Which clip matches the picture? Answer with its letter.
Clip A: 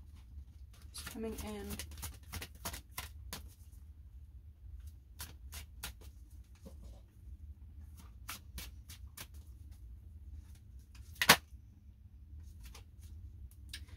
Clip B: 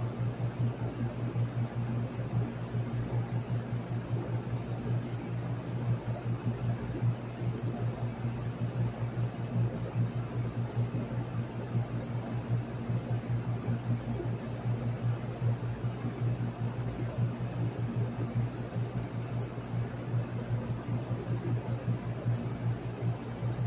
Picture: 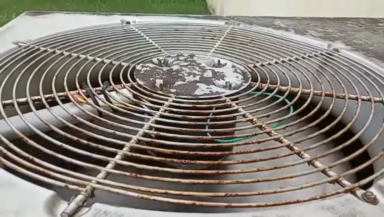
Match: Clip B